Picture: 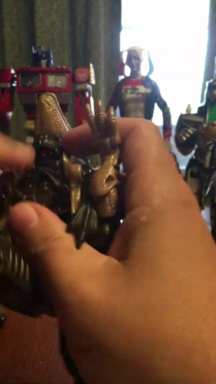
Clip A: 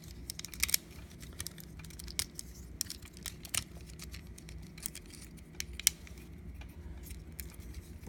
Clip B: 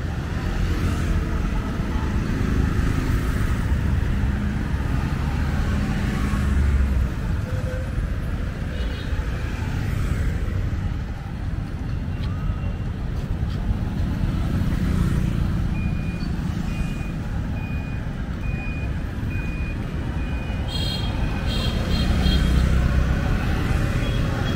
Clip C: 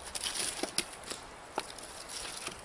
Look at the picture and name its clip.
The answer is A